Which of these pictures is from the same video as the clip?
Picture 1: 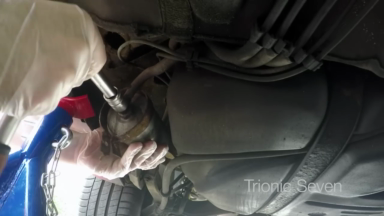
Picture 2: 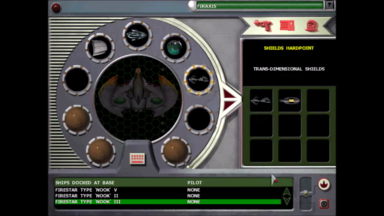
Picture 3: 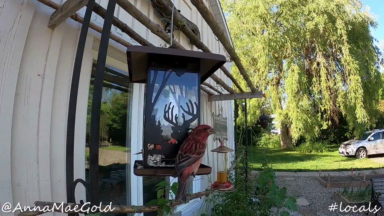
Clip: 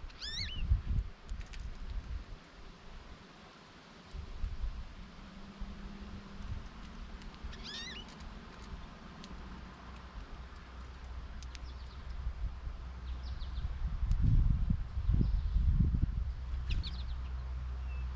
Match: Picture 3